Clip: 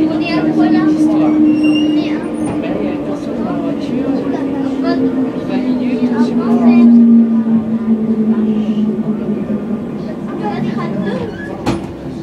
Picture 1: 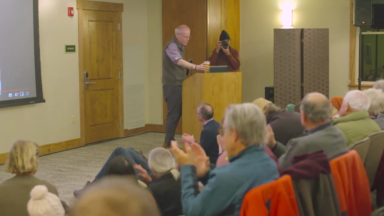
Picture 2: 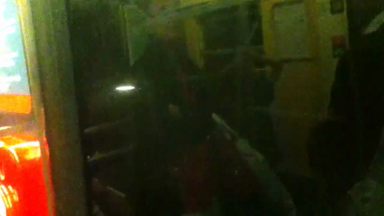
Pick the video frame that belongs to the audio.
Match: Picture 2